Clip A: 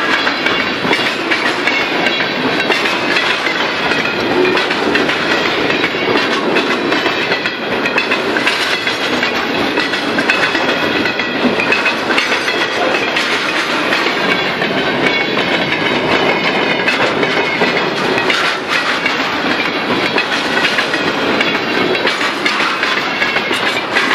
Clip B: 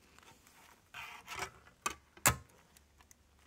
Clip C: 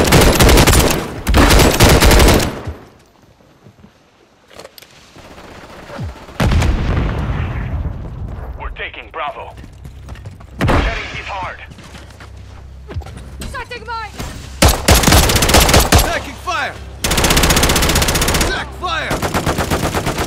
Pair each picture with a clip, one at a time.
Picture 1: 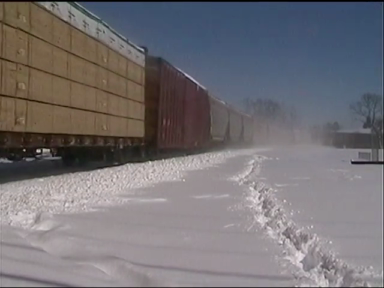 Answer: A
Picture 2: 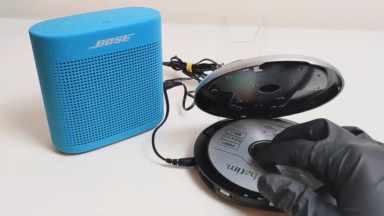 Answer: B